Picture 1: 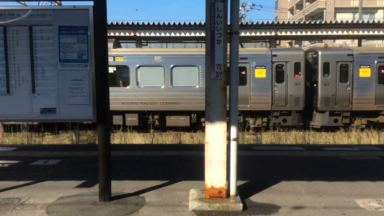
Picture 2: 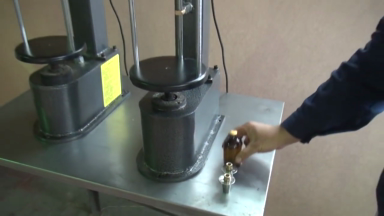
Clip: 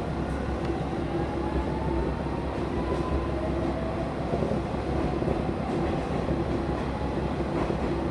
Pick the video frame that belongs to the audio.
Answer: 1